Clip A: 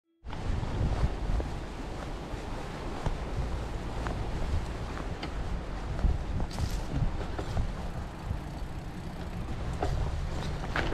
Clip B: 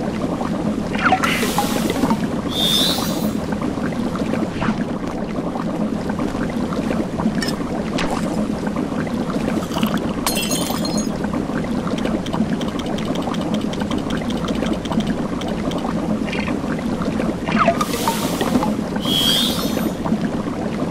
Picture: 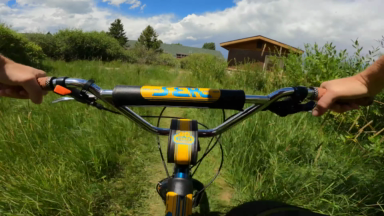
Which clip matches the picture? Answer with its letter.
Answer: A